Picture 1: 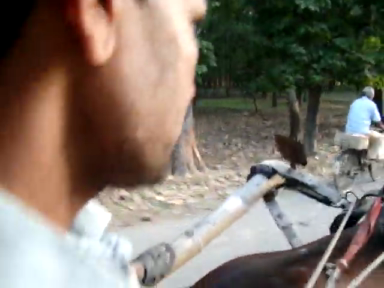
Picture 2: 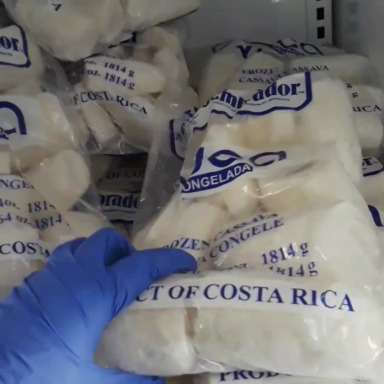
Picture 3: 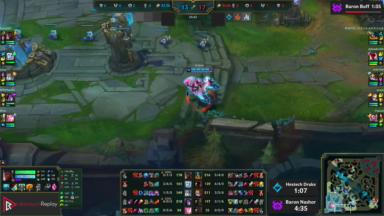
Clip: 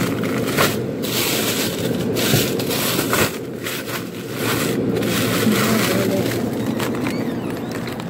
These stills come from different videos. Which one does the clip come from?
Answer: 2